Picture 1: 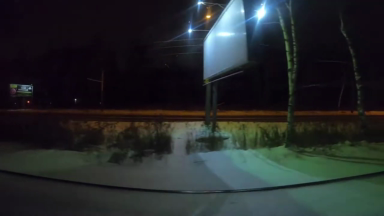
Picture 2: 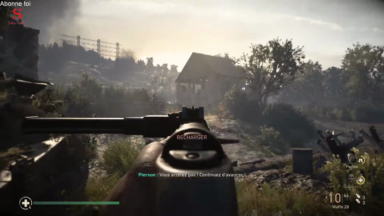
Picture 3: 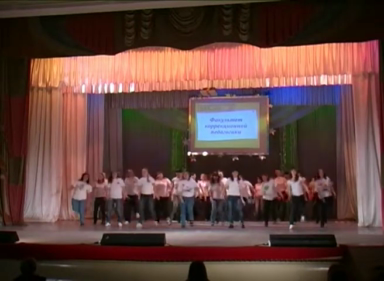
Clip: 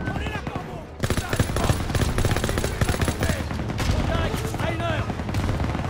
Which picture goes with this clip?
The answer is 2